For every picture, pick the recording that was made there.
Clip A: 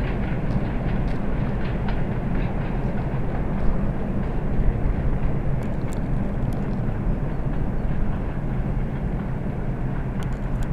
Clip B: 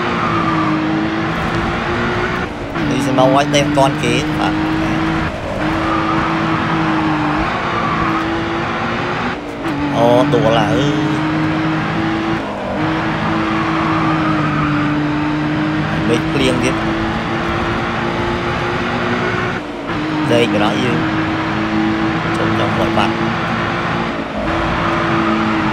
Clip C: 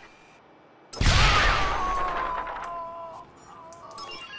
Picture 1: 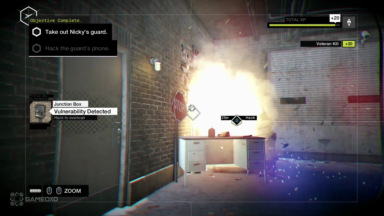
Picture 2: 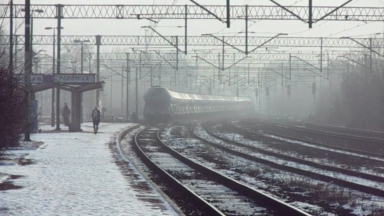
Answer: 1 C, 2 A